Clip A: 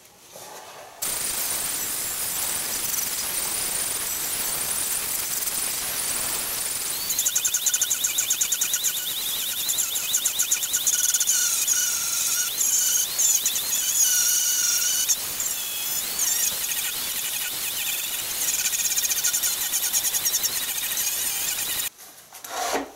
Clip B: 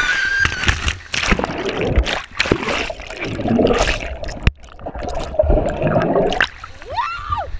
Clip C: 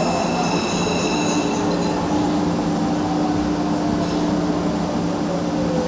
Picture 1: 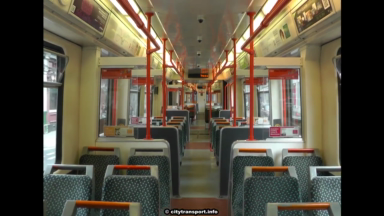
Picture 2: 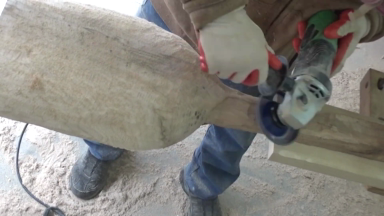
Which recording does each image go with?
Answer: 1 C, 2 A